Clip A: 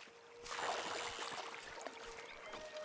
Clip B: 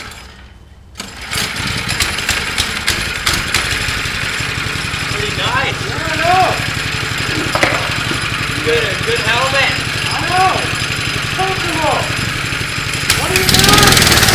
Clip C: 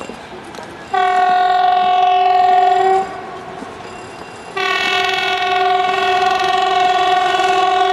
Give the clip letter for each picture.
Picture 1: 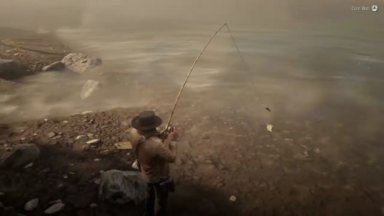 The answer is A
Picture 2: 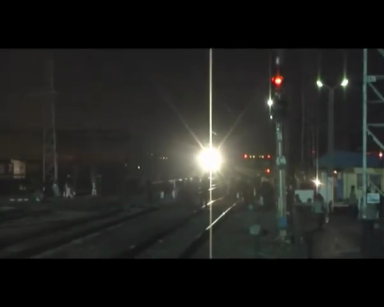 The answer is C